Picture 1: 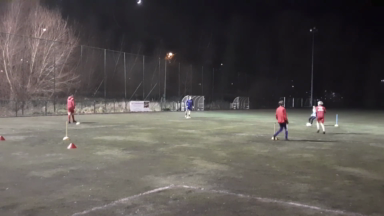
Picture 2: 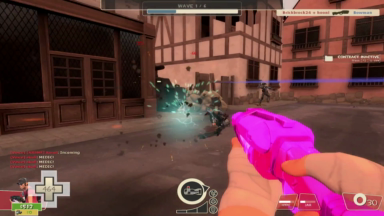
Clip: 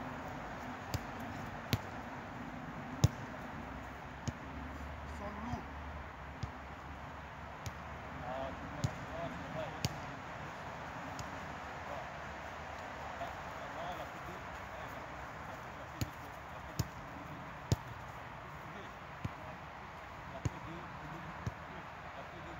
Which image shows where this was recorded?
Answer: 1